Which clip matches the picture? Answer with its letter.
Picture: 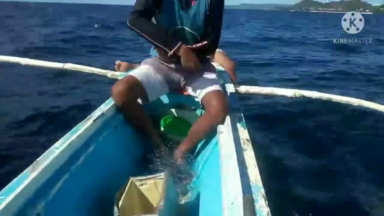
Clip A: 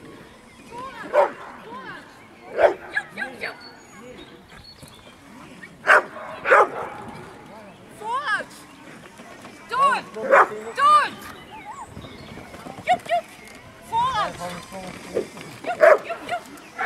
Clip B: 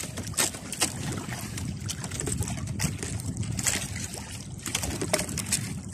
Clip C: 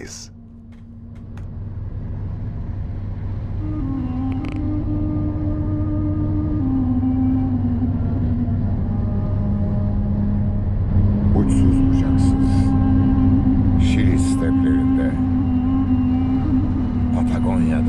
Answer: B